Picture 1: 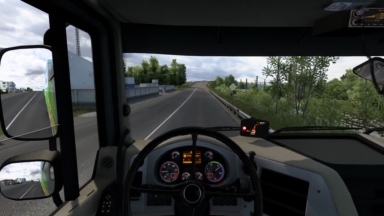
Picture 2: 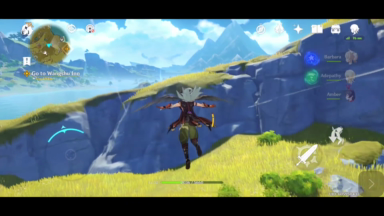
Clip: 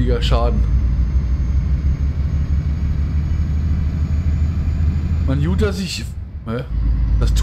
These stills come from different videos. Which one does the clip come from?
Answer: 1